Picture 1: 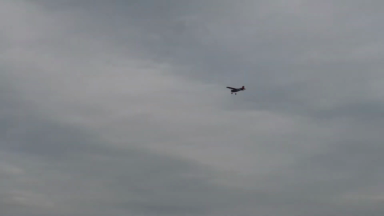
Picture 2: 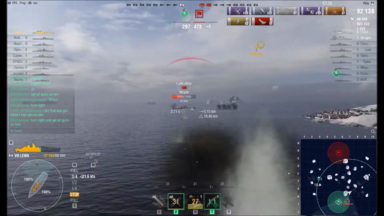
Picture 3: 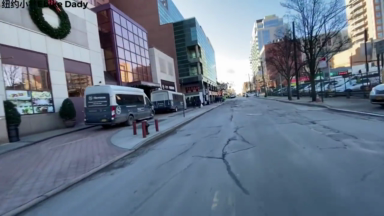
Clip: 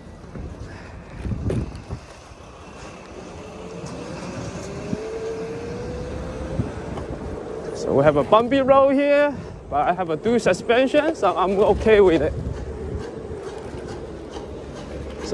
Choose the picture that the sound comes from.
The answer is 3